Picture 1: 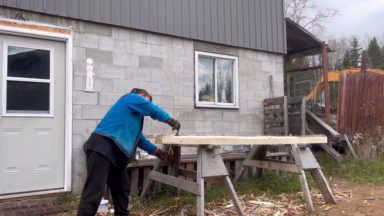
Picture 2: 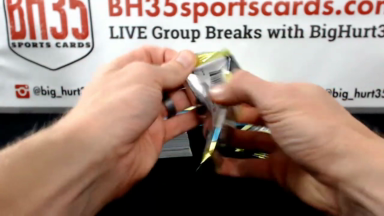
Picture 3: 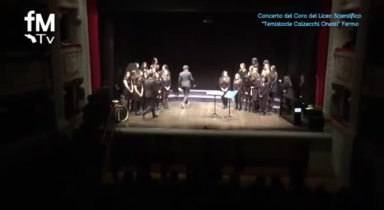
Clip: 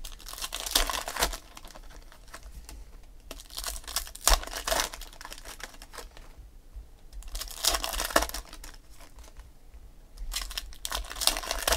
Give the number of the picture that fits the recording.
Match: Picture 2